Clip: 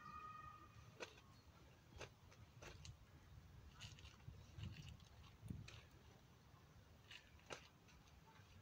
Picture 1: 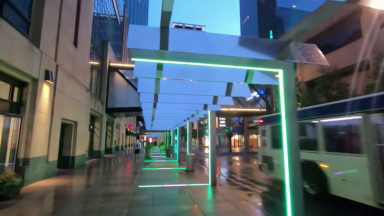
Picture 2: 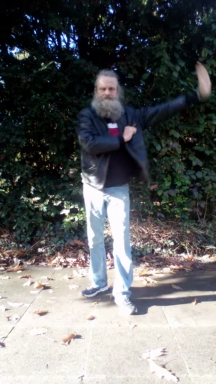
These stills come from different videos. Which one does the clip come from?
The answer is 2